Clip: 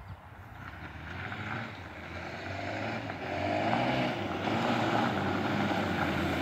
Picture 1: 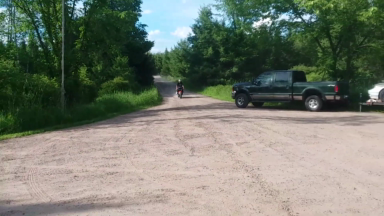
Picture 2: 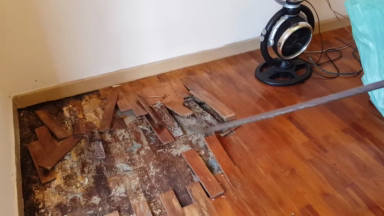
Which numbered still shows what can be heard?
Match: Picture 1